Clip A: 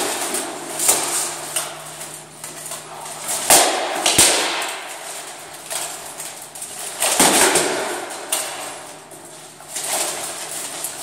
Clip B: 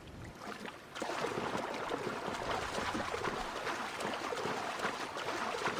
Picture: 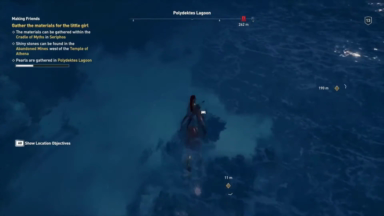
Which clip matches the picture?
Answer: B